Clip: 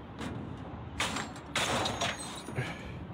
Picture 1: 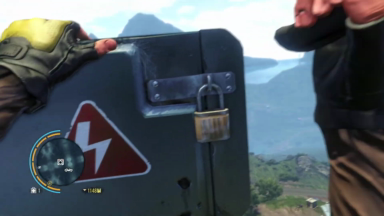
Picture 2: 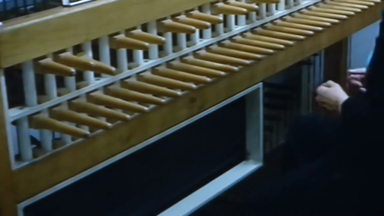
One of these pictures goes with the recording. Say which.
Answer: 1